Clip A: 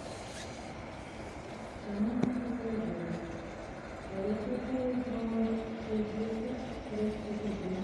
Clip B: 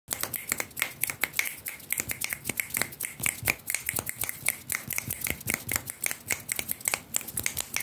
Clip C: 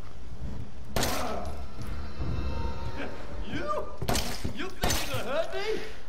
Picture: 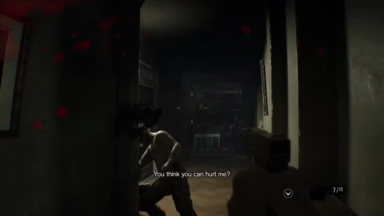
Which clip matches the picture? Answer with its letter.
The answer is C